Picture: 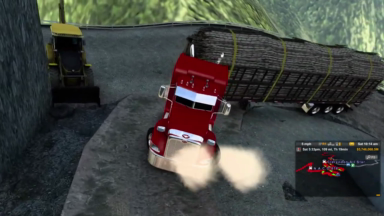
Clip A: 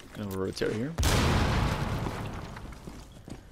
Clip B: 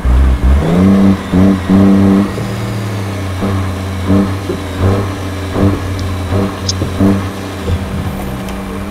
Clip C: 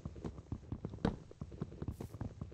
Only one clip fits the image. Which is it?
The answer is B